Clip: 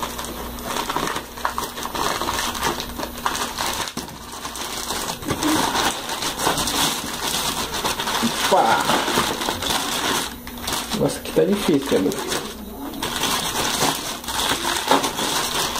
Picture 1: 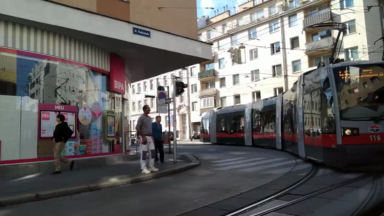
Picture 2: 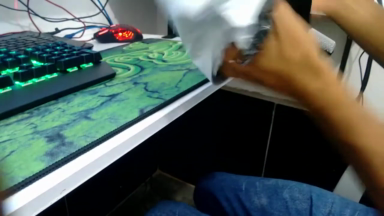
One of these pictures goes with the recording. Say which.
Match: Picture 2